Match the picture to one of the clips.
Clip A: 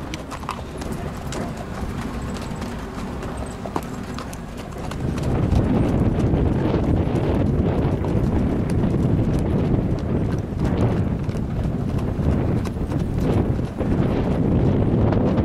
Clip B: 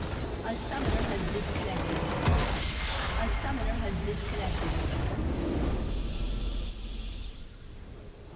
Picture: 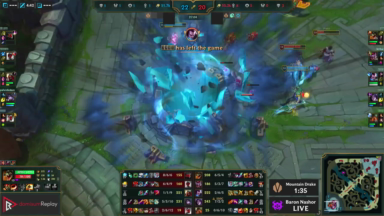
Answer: B